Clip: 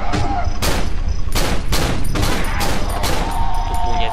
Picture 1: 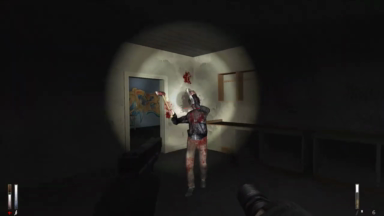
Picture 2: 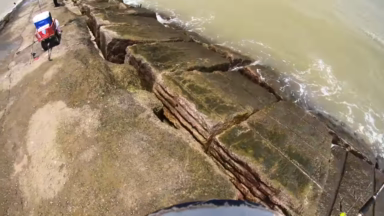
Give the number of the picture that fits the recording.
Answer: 1